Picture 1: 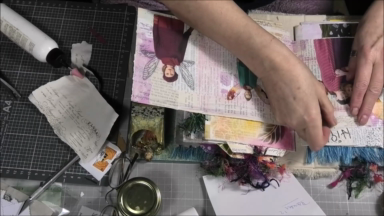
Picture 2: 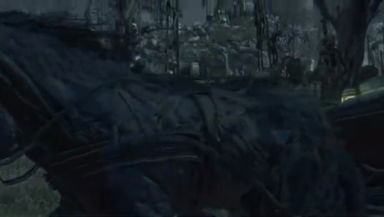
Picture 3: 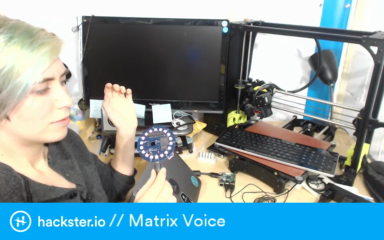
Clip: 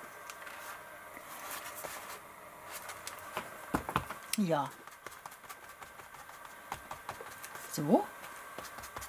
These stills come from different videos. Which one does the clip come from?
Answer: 1